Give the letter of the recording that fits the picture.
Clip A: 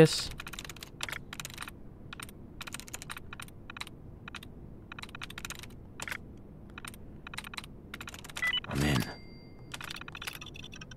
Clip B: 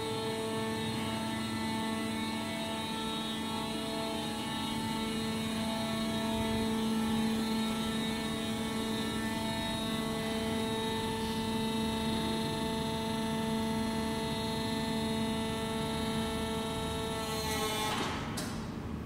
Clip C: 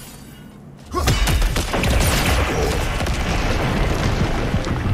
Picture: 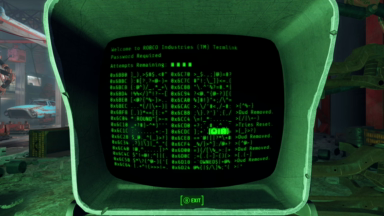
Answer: A